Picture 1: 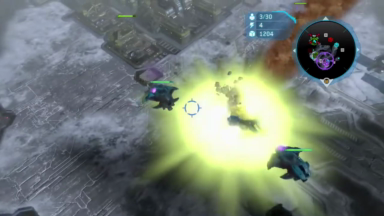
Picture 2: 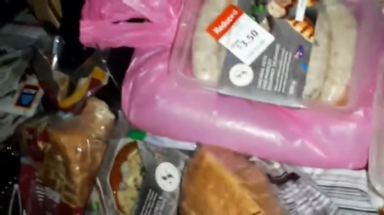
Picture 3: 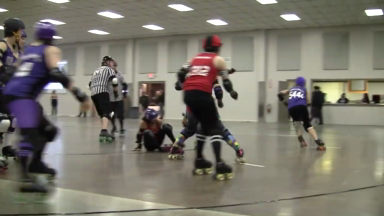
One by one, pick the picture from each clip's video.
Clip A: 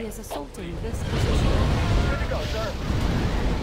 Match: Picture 1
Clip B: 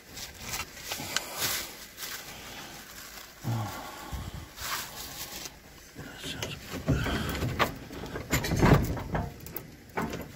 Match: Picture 2